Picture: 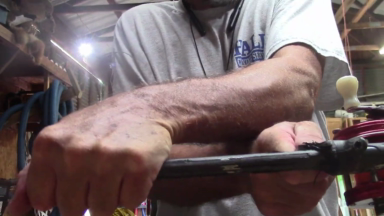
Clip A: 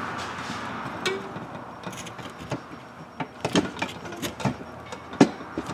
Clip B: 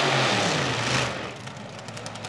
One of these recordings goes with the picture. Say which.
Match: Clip A